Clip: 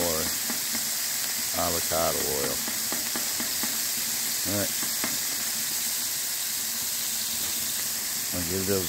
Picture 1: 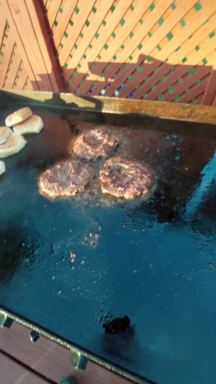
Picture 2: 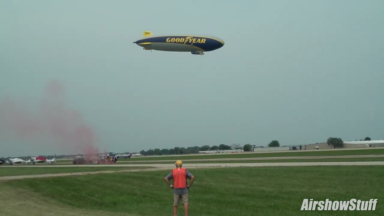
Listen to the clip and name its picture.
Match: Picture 1